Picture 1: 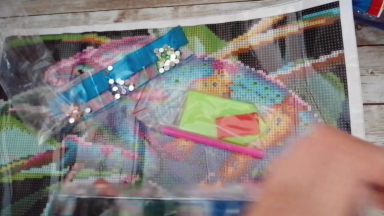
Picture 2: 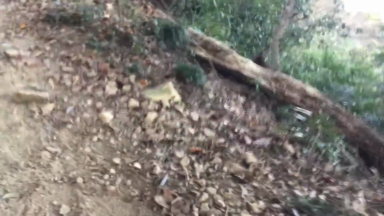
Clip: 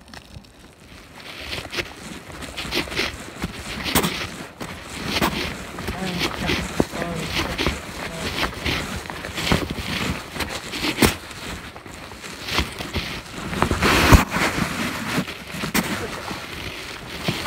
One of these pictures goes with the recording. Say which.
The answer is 2